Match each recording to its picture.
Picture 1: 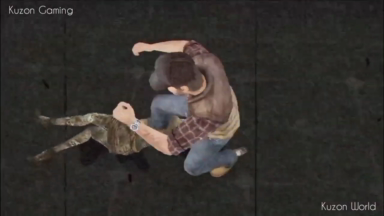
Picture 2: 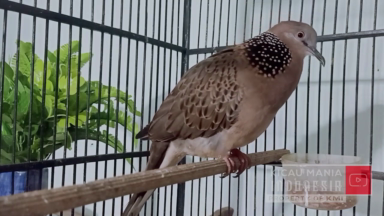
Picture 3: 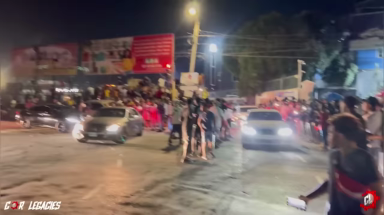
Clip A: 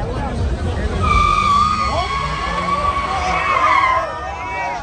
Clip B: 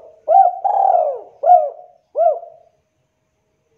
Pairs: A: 3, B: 2